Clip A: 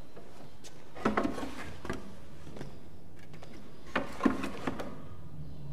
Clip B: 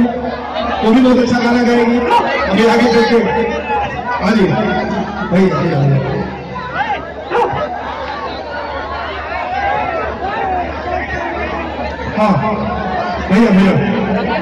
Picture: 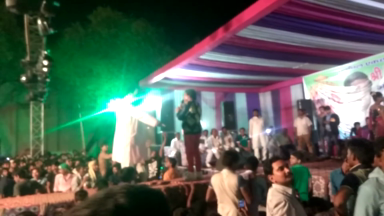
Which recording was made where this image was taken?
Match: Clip B